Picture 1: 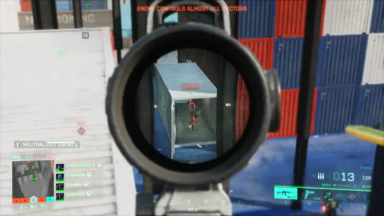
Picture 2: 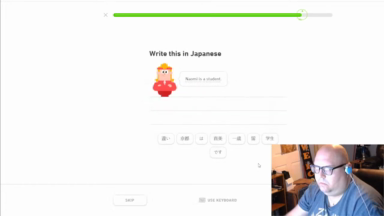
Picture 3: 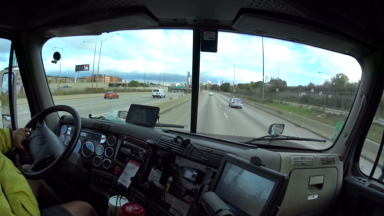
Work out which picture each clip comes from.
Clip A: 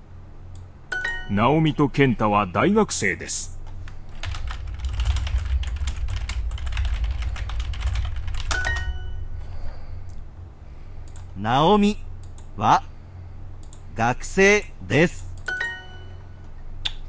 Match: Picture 2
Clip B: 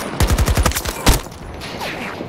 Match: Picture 1